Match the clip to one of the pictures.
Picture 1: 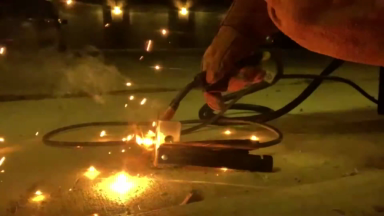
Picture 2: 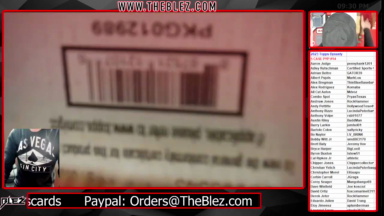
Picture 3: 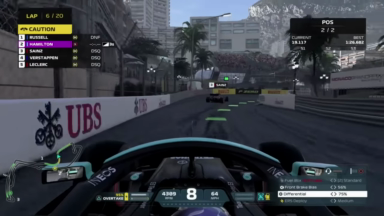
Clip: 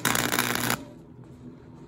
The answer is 1